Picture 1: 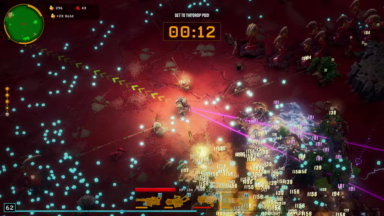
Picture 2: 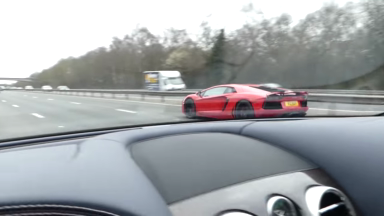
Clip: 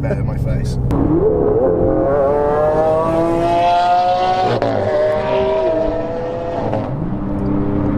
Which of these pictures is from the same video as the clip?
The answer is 2